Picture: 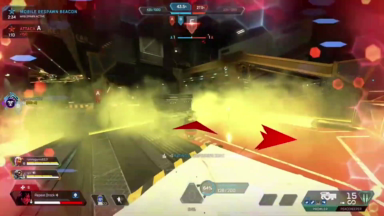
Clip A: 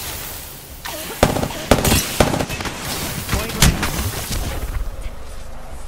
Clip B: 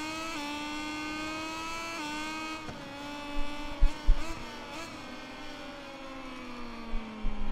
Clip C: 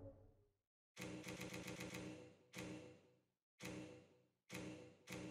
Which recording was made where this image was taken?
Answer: A